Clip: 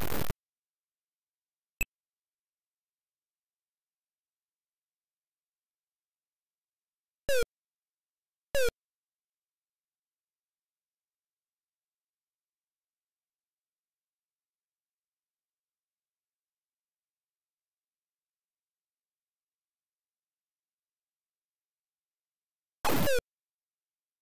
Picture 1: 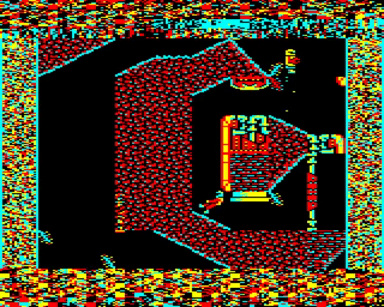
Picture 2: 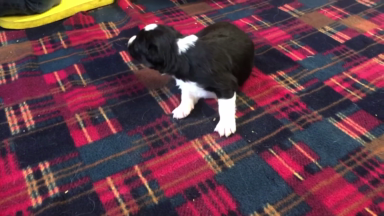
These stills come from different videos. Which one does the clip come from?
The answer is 1